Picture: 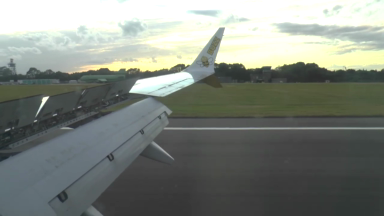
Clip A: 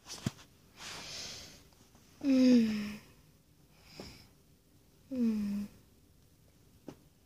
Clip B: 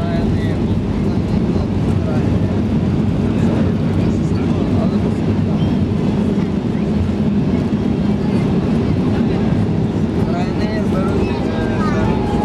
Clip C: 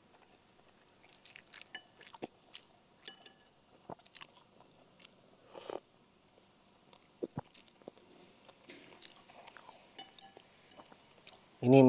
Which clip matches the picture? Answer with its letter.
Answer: B